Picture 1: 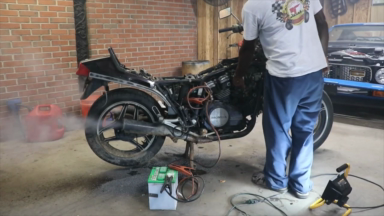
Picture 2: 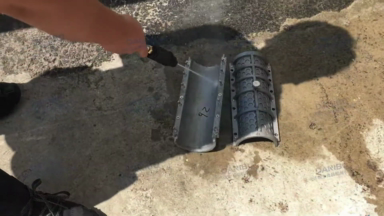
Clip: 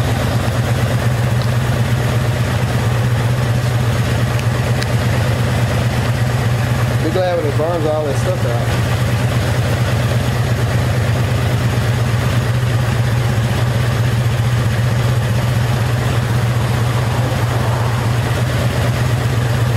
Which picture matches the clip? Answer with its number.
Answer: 1